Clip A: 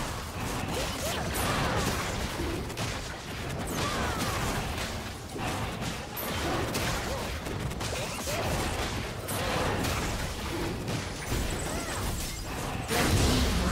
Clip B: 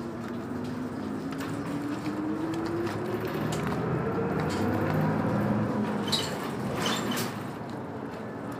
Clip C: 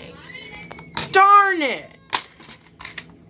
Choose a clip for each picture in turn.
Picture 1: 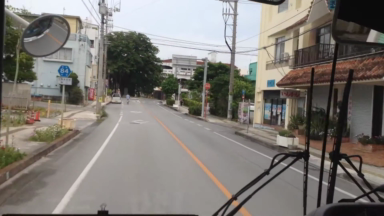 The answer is B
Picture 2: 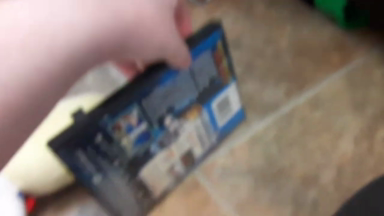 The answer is C